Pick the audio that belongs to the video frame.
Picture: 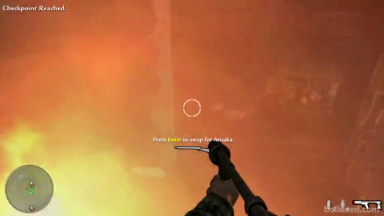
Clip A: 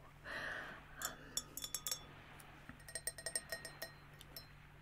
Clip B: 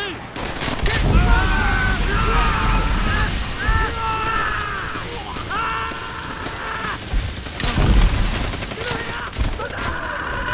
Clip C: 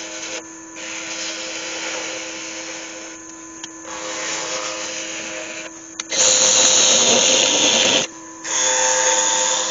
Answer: B